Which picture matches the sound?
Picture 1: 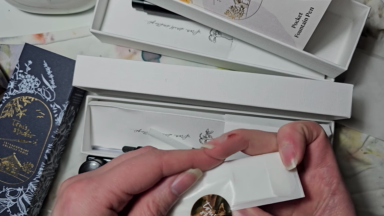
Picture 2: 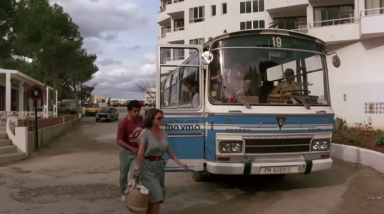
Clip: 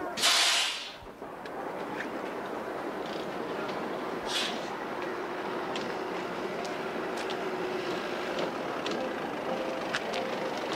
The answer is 2